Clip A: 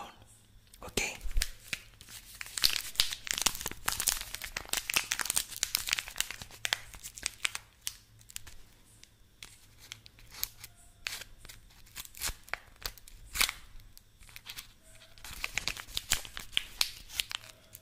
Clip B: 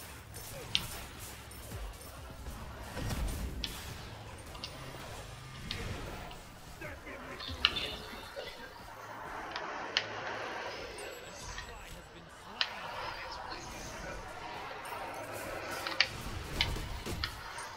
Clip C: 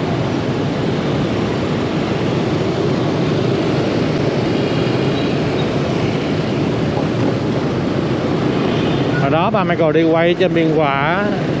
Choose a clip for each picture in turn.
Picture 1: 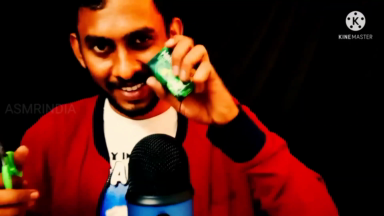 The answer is A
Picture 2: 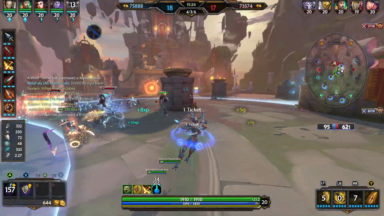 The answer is B